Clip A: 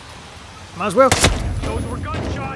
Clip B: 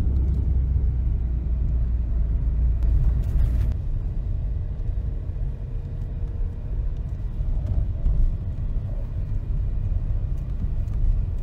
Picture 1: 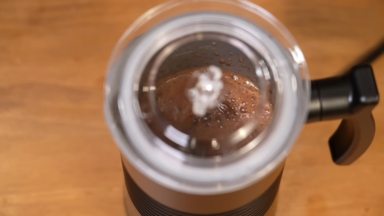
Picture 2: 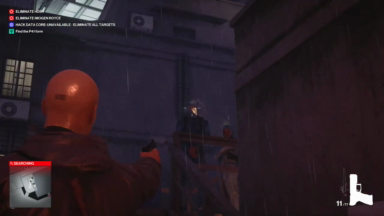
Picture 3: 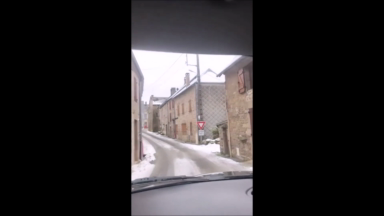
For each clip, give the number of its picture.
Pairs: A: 2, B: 3